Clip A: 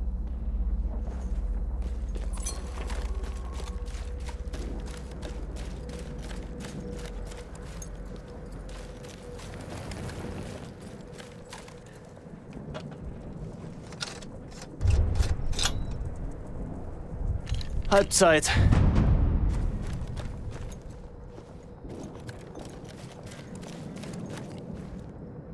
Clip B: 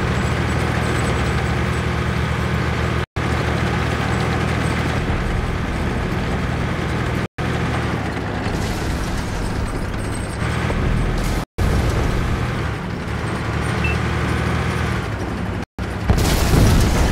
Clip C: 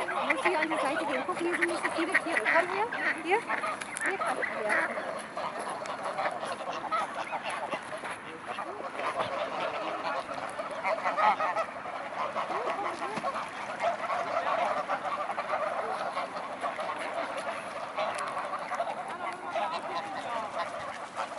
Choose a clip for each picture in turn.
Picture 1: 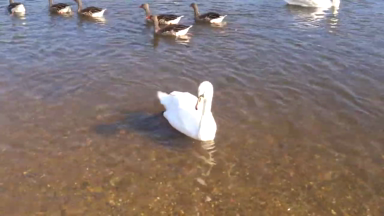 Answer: C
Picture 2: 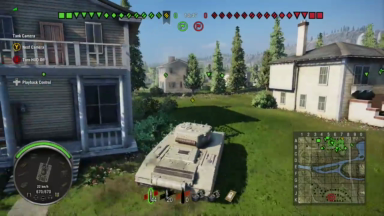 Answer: B